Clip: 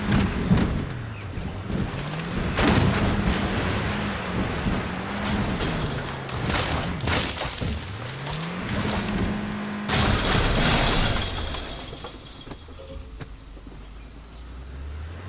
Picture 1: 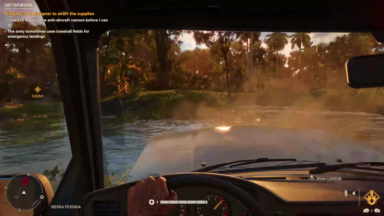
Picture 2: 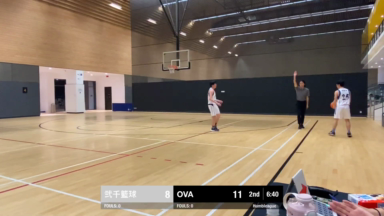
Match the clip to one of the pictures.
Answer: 1